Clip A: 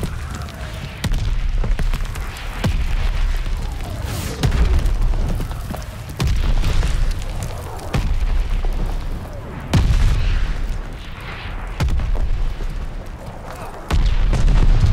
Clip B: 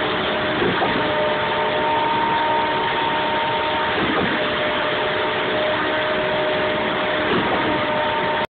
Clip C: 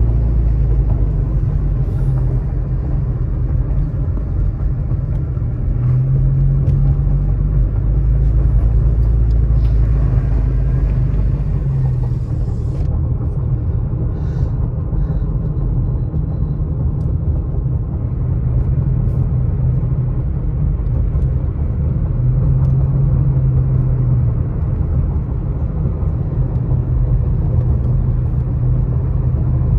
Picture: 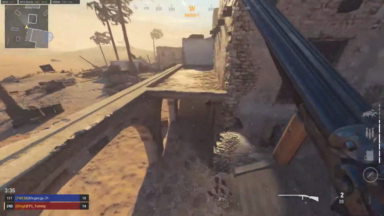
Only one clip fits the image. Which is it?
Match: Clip A